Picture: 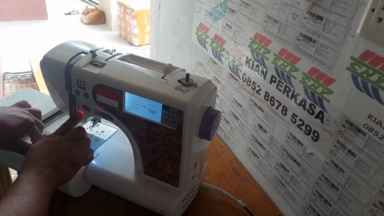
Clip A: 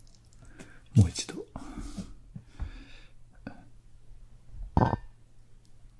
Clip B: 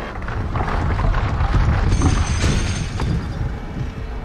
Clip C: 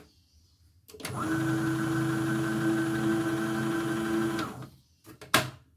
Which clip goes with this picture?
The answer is C